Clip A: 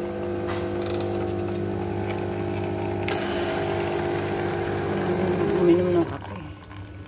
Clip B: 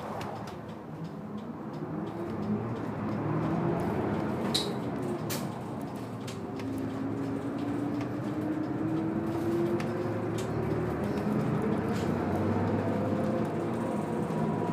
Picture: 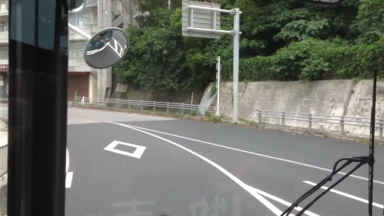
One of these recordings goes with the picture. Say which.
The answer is B